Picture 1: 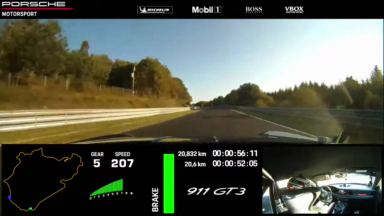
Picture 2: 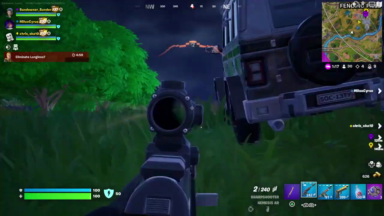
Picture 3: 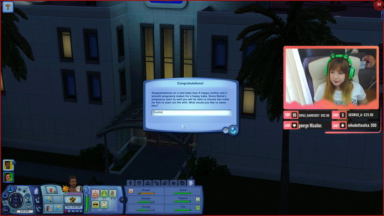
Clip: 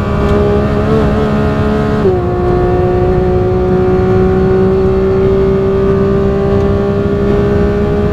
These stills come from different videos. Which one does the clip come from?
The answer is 1